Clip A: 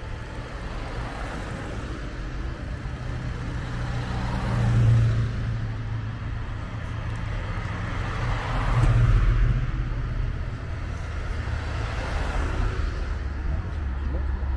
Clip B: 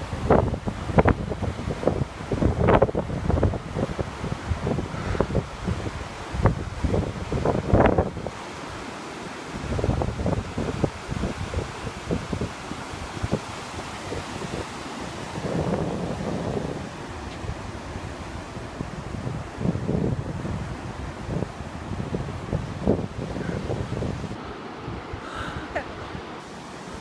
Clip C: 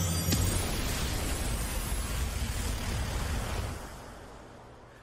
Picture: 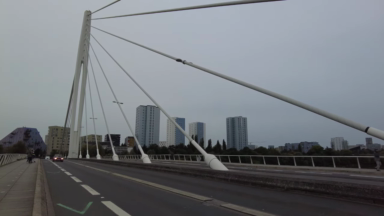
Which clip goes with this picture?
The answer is A